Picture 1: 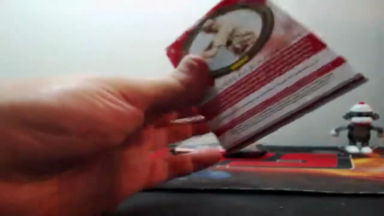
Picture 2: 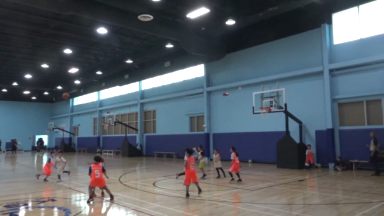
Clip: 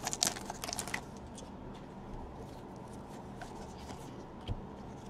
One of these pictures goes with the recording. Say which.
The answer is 1